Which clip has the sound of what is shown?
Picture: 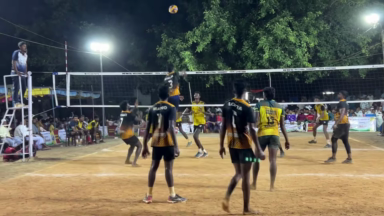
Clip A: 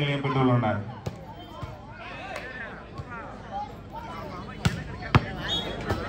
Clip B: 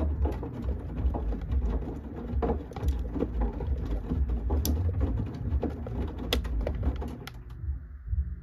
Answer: A